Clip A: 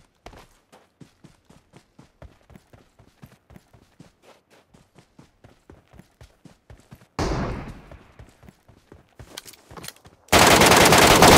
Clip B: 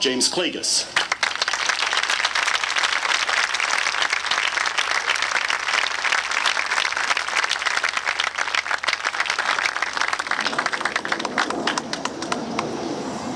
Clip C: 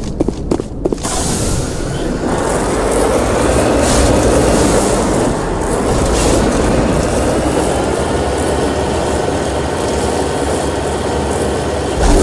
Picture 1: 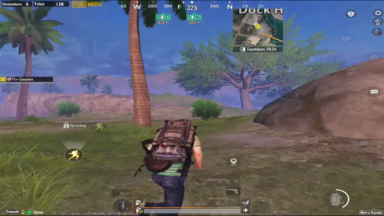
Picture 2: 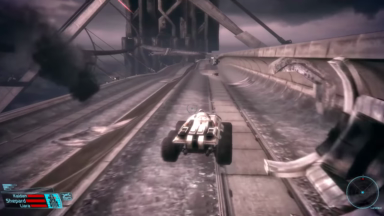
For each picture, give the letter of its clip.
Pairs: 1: A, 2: C